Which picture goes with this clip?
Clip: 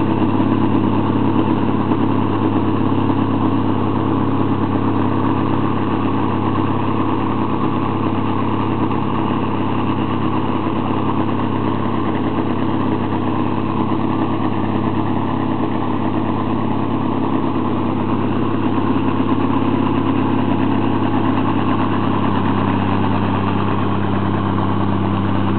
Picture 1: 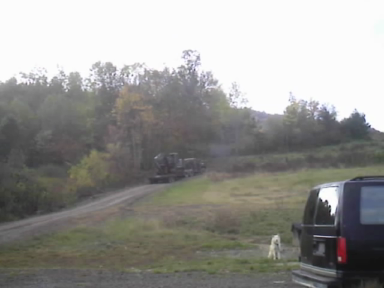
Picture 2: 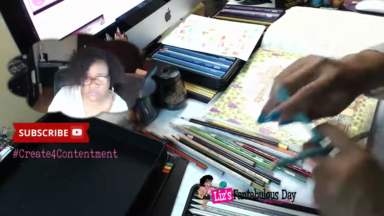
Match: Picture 1